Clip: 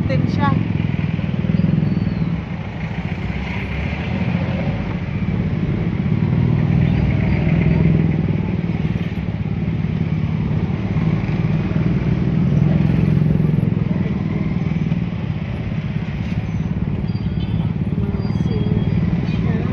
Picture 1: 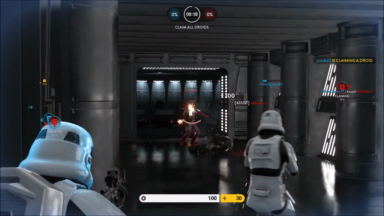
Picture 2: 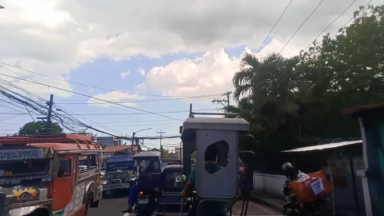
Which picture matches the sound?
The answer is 2